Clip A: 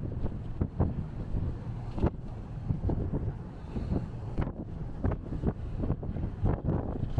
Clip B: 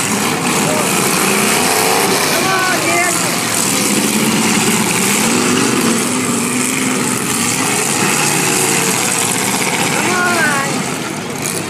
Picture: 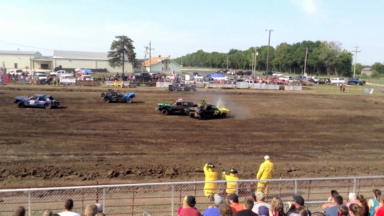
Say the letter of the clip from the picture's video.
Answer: B